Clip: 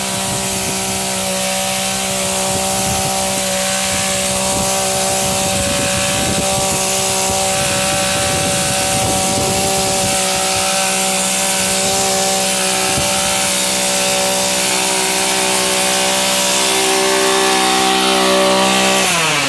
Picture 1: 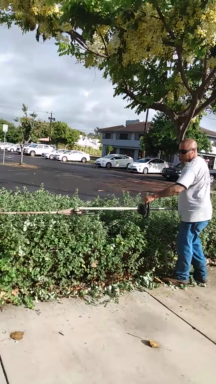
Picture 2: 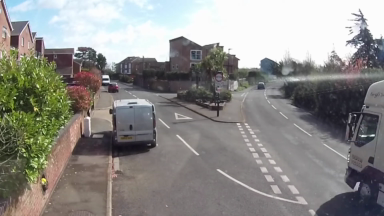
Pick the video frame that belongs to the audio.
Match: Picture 1